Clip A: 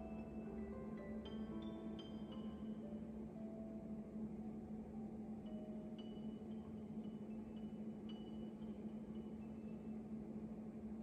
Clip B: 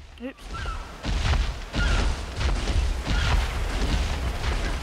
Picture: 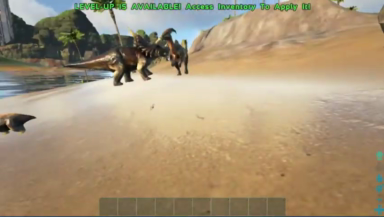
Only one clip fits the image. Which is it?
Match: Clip B